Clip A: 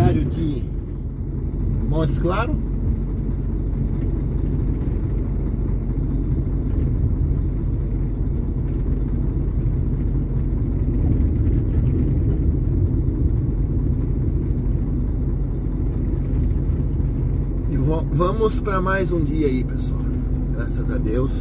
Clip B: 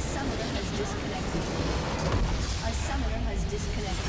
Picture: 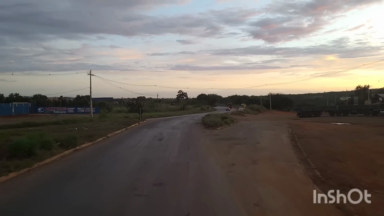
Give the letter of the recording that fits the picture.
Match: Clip A